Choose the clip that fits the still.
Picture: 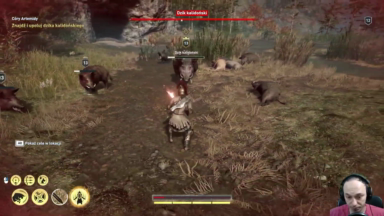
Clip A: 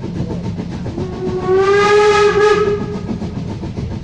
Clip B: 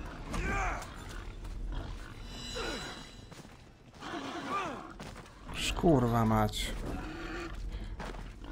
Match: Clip B